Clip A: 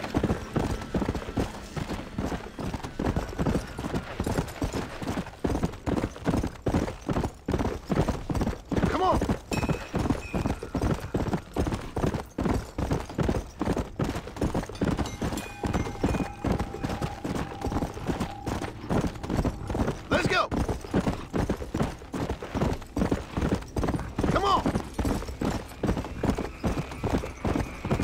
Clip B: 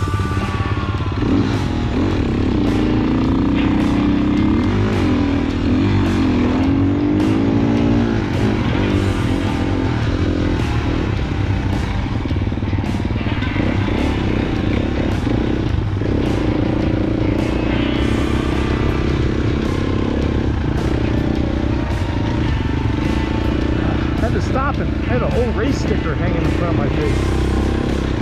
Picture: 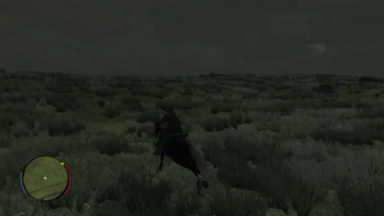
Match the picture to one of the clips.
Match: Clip A